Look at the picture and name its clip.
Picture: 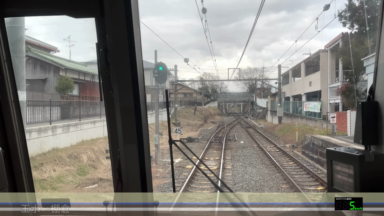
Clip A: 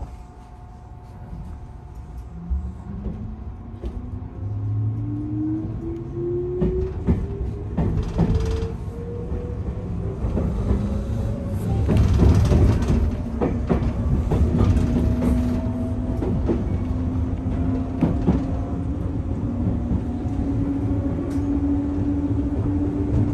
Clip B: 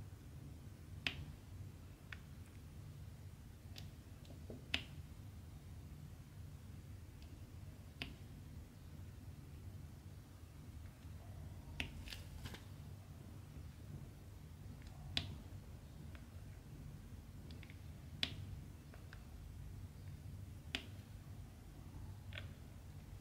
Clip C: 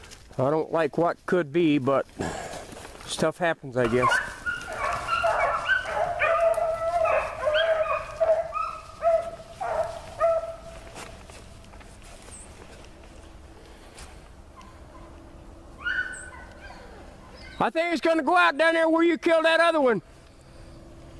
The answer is A